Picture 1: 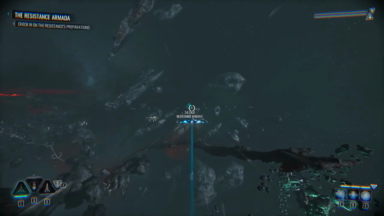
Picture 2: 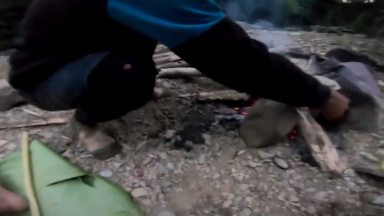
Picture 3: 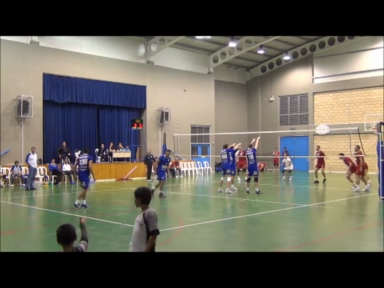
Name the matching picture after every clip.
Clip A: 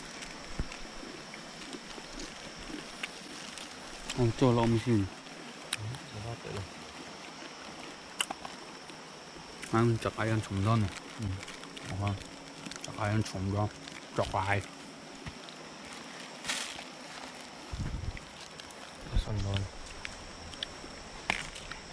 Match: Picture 2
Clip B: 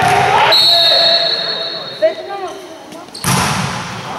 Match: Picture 3